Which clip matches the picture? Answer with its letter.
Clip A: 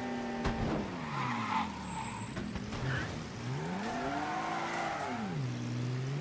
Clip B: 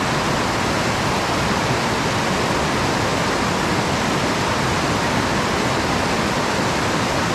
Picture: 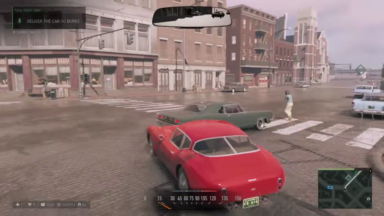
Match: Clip A